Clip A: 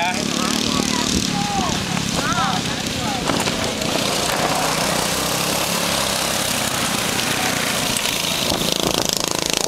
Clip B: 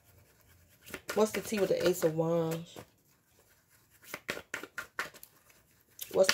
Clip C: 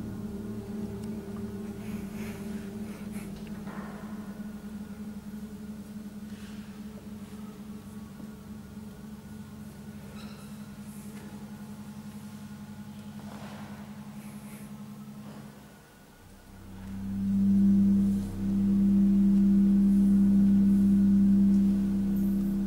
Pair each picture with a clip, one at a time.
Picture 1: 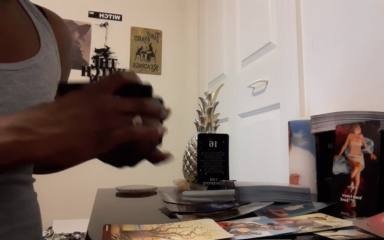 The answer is B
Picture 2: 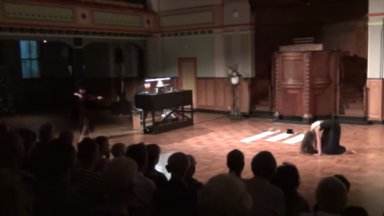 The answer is C